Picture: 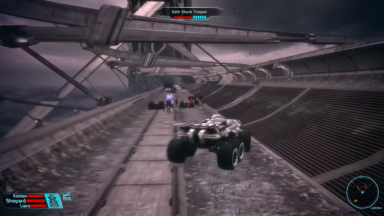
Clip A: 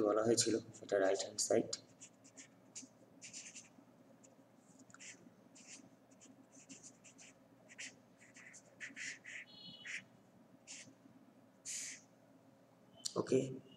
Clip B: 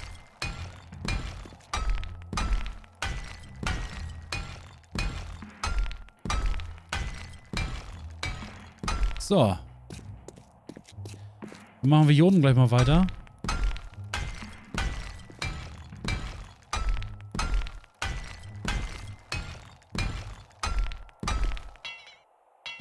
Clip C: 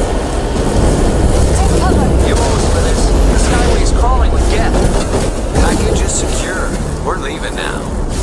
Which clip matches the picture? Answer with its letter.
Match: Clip C